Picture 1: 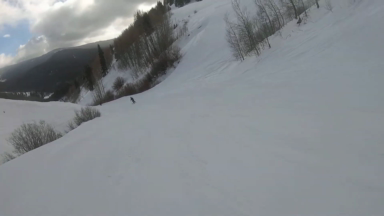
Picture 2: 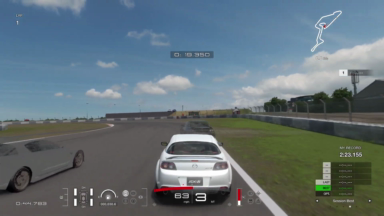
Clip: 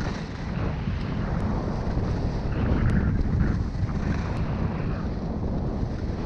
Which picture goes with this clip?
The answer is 1